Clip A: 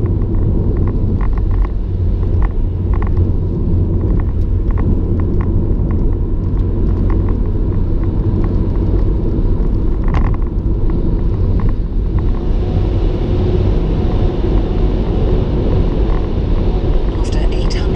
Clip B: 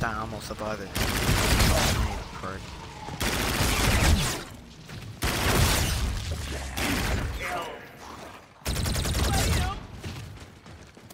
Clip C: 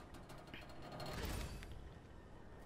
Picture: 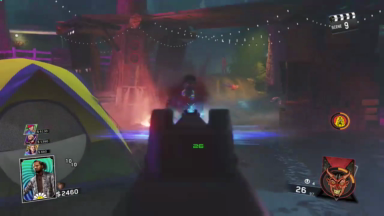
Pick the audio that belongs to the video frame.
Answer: B